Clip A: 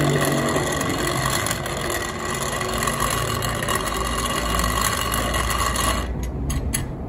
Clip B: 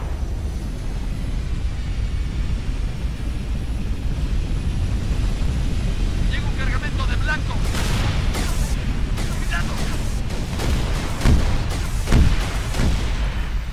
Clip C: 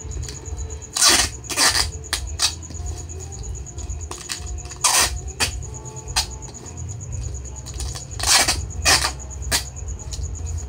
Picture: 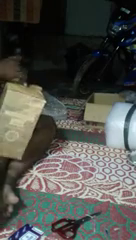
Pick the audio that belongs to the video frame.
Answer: C